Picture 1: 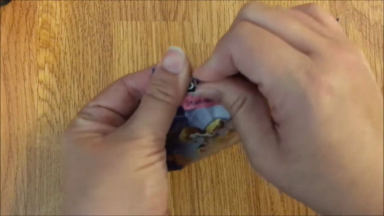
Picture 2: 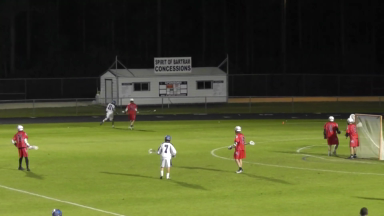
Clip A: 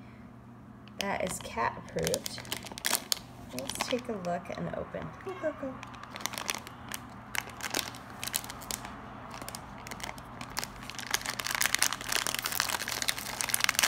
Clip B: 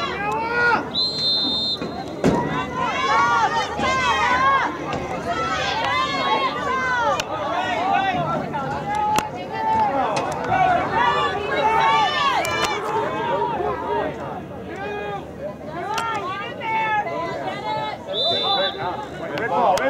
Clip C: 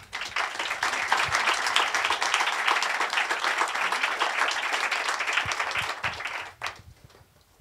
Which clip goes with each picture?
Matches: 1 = A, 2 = B